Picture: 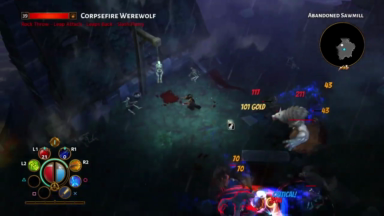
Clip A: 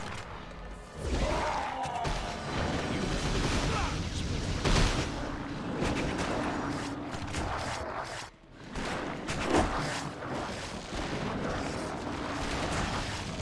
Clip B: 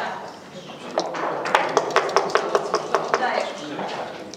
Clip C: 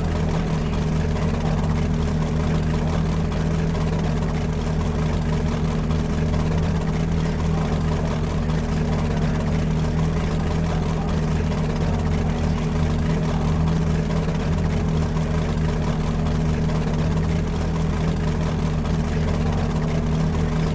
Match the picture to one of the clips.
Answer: A